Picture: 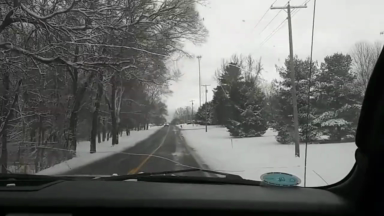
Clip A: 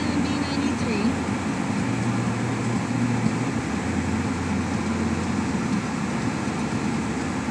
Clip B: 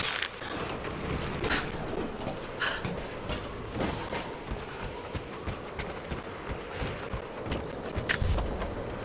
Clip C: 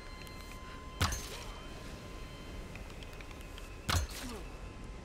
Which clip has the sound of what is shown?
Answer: A